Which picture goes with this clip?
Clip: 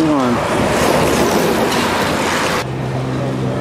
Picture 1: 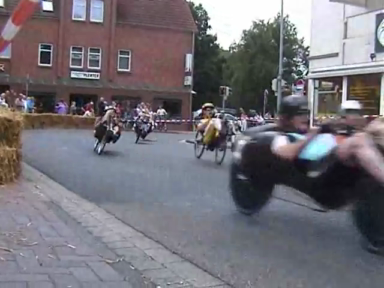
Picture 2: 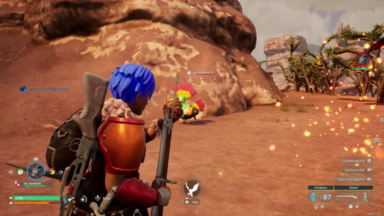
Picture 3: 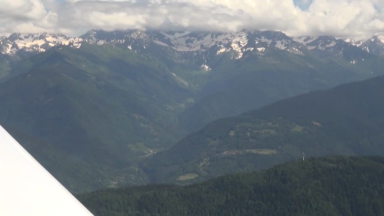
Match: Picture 1